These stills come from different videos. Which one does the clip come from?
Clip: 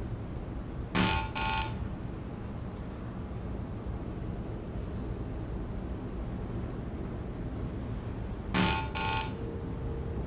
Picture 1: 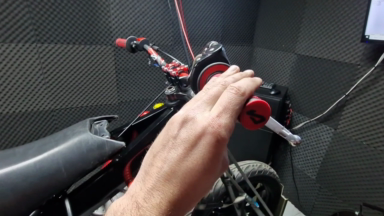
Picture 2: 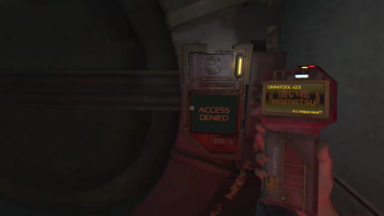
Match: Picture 2